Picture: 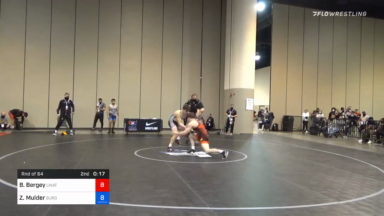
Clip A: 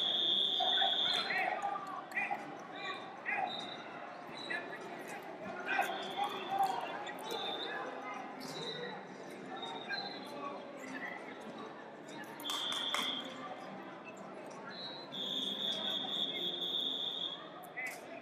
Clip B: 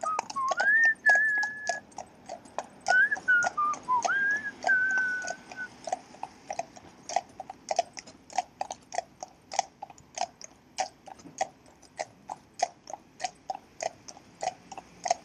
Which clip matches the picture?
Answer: A